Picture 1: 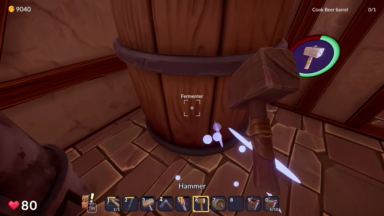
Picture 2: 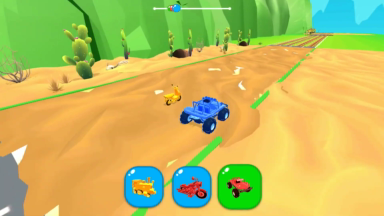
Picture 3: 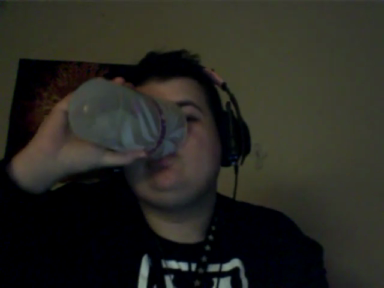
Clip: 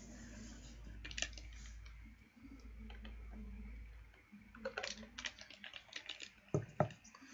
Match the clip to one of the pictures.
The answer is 3